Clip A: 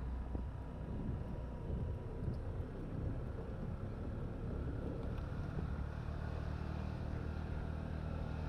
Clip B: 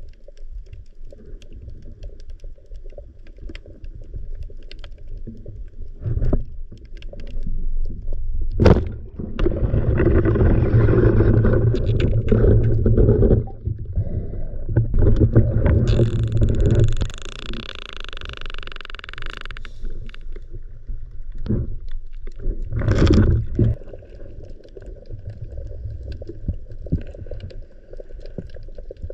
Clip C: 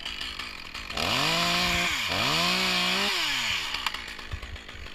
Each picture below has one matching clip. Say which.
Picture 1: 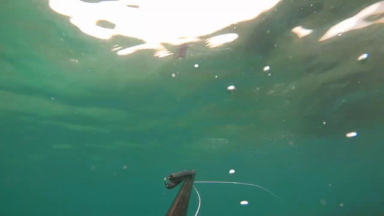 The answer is B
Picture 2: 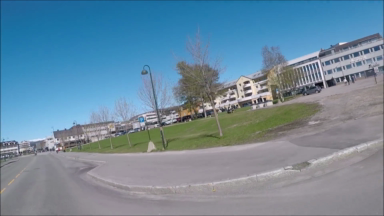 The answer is A